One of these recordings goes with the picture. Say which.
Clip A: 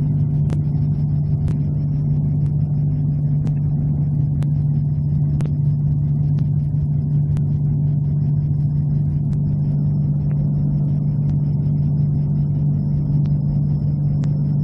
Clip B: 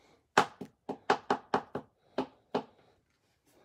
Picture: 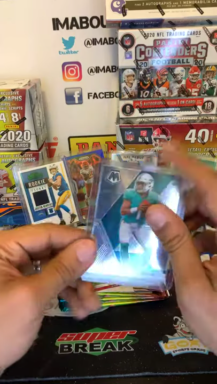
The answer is B